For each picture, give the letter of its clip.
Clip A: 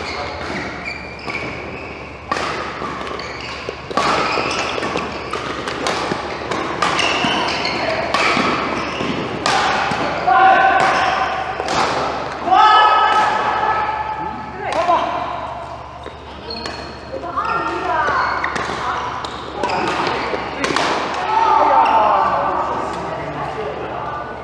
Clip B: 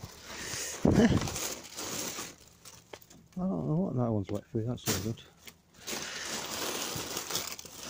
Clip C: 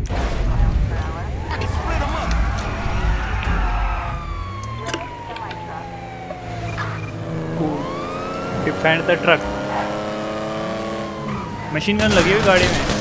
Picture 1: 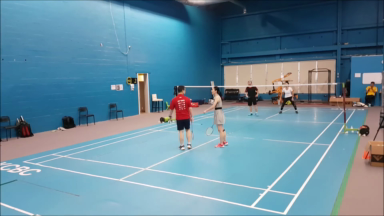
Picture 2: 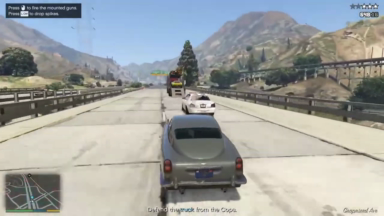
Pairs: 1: A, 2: C